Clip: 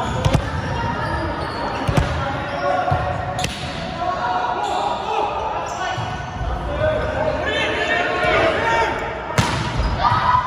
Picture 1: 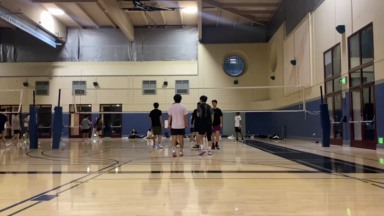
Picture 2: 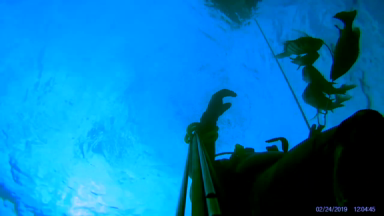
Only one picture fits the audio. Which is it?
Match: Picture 1